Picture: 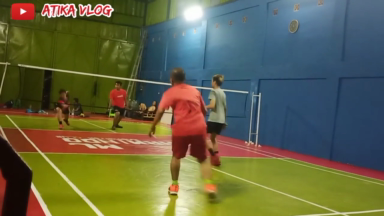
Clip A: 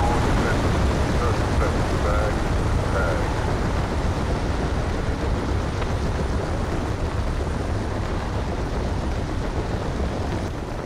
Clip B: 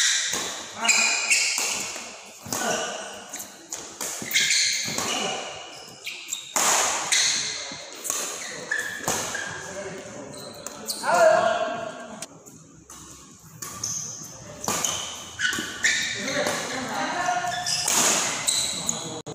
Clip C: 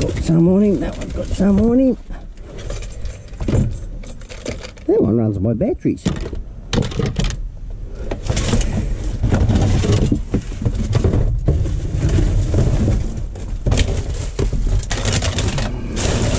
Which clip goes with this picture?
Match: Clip B